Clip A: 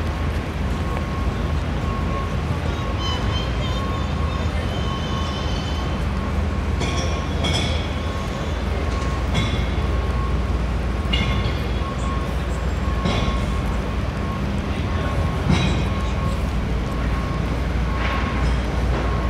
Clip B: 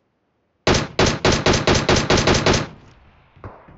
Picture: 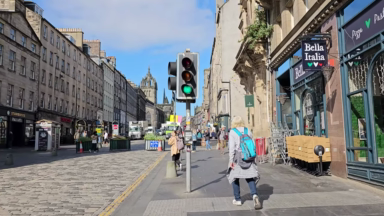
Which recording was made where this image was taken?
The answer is A